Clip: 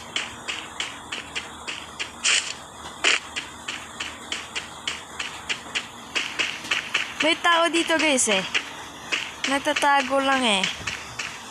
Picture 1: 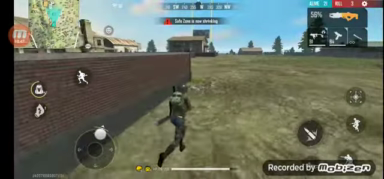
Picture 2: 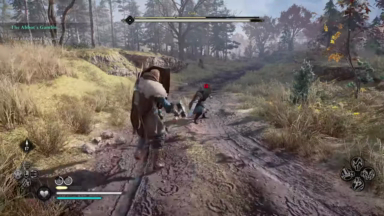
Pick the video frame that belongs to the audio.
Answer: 1